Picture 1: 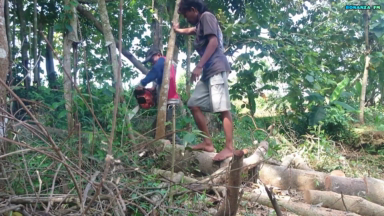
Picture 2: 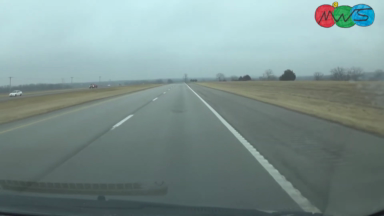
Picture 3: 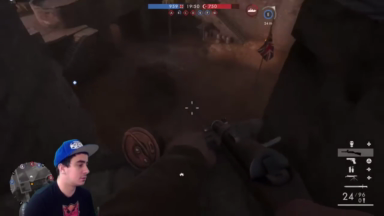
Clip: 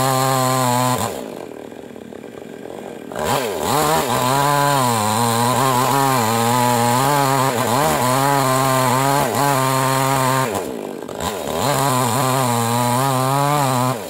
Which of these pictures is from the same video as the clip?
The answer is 1